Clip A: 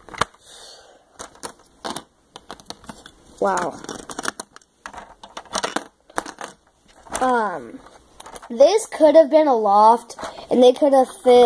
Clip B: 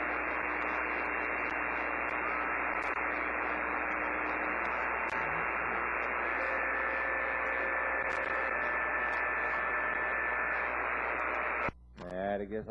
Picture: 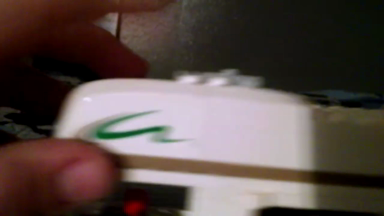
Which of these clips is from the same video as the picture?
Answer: A